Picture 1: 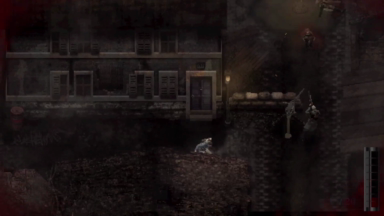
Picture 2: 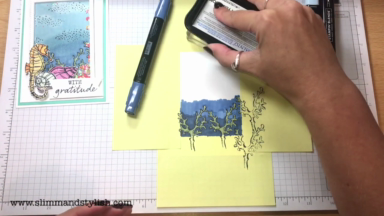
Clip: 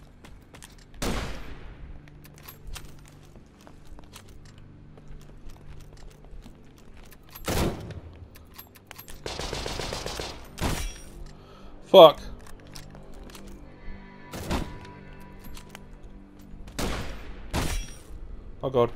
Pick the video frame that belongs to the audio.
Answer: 1